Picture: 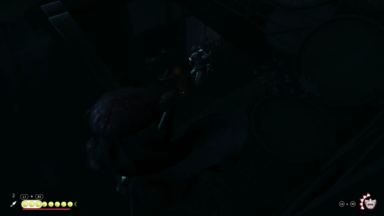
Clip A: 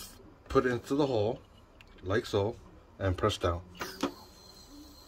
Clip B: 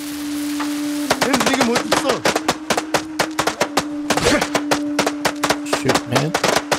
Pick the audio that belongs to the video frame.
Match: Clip B